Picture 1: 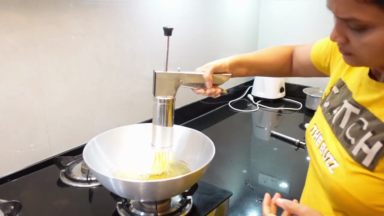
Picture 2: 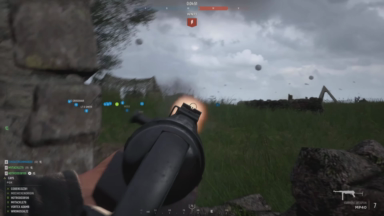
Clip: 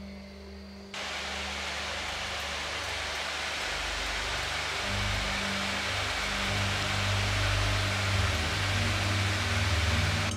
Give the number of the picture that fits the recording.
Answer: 1